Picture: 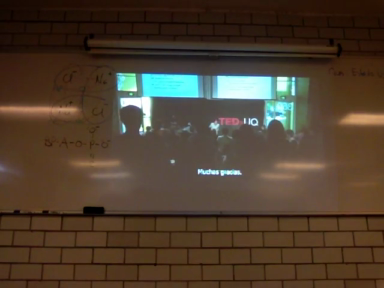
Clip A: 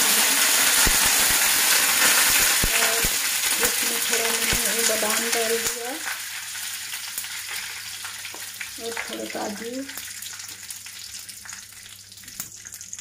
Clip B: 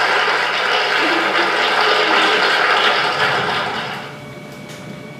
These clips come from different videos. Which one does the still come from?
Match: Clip B